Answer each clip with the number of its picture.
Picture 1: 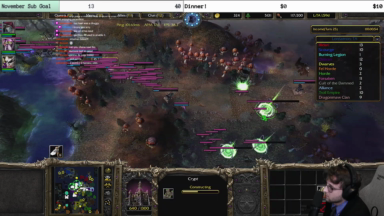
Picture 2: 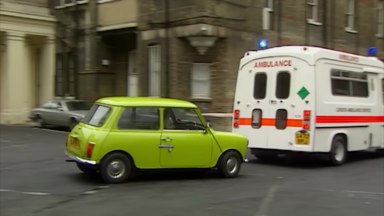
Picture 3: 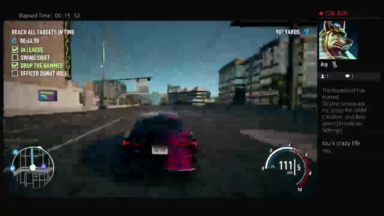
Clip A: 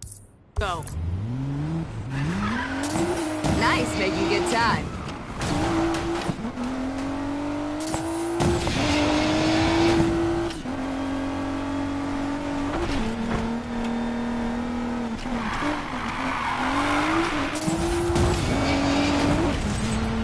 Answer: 3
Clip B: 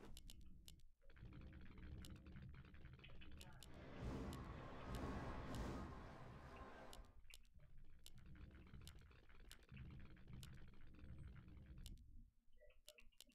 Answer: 1